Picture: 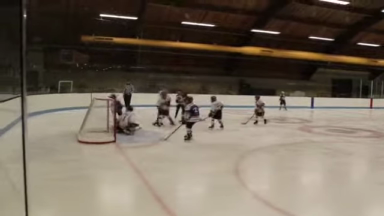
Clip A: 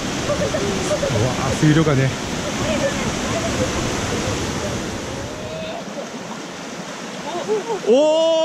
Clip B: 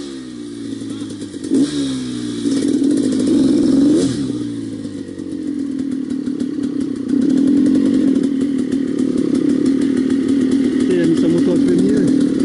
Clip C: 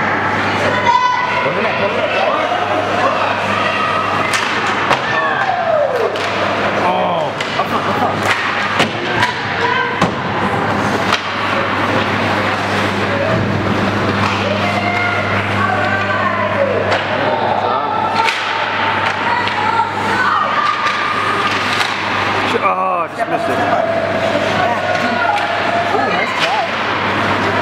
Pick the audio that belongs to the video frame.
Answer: C